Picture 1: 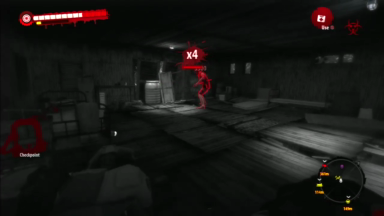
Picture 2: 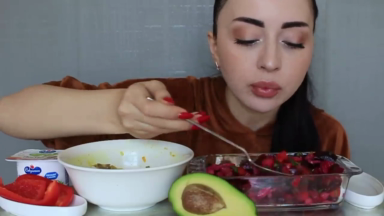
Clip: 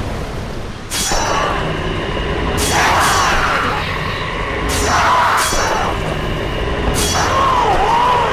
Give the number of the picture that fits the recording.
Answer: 1